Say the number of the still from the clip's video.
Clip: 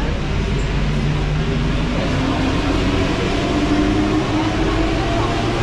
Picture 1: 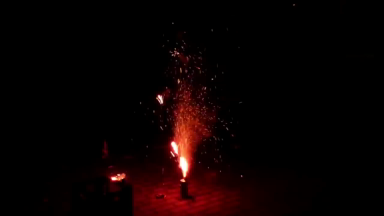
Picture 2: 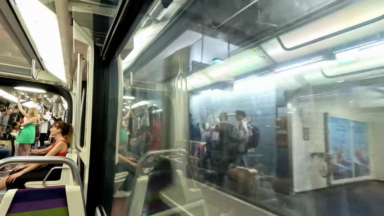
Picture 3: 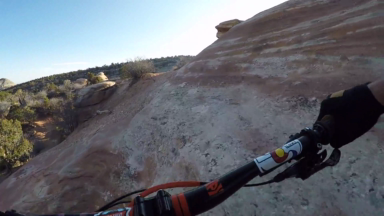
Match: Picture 2